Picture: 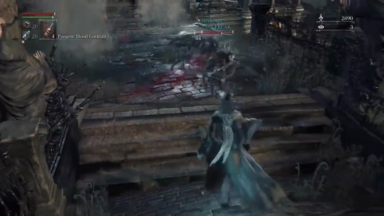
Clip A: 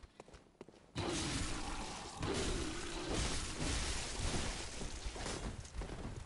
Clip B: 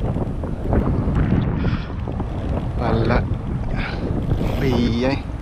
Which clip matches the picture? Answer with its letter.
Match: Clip A